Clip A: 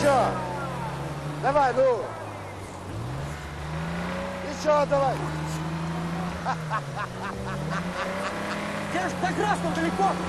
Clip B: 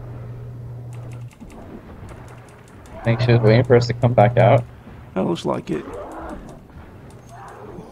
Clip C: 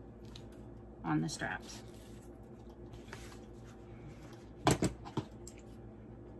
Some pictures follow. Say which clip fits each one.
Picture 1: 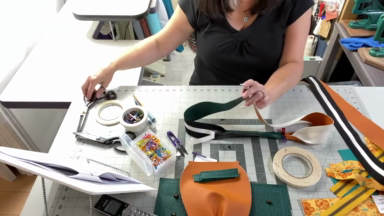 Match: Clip C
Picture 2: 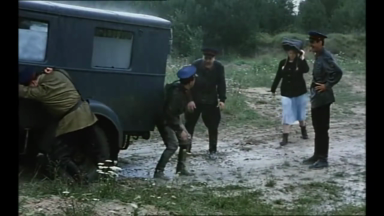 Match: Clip A